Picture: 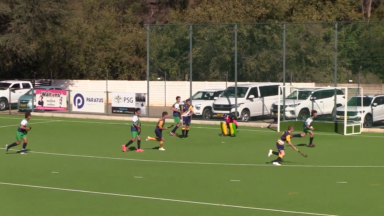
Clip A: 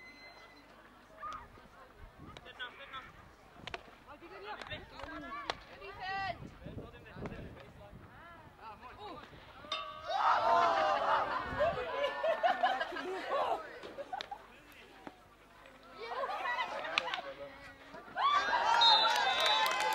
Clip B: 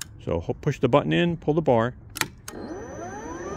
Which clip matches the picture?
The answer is A